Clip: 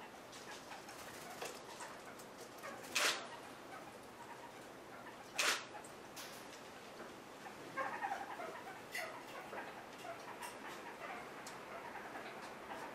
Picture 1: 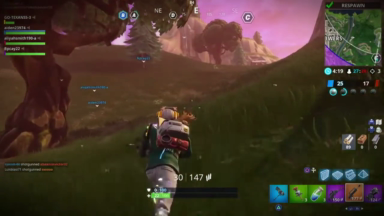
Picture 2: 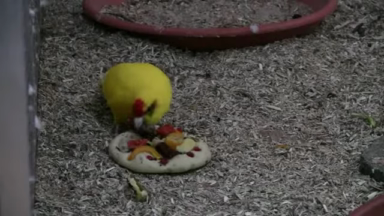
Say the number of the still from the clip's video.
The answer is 2